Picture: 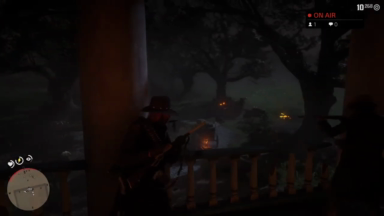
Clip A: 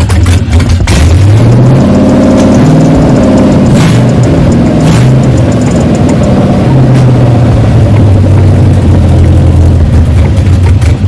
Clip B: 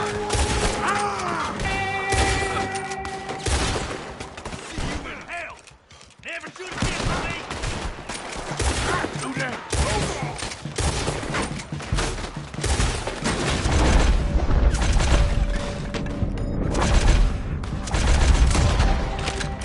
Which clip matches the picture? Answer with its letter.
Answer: B